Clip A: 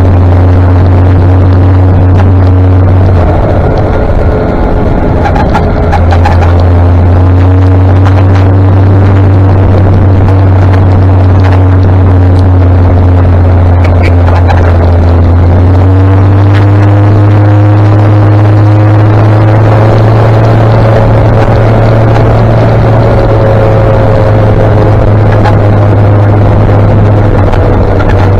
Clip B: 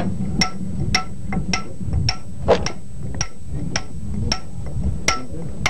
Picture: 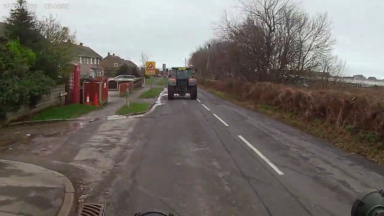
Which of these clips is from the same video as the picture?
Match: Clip A